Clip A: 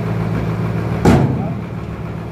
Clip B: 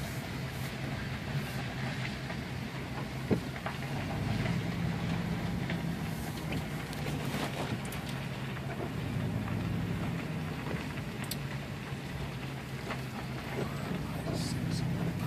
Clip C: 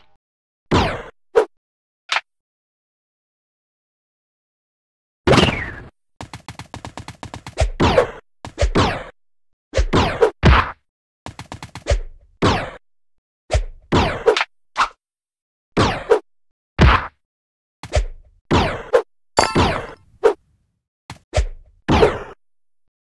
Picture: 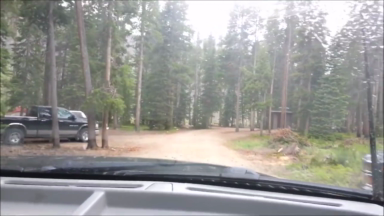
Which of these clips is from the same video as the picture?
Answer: B